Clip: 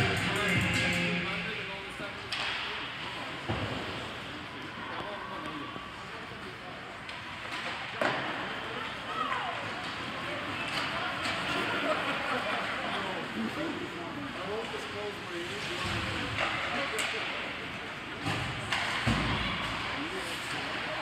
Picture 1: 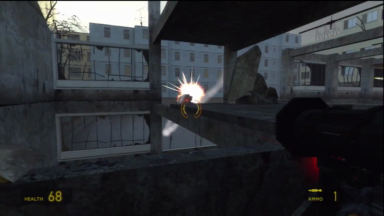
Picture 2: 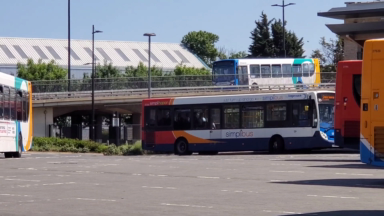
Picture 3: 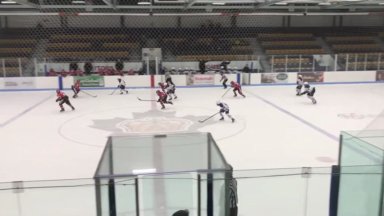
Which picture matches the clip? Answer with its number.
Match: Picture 3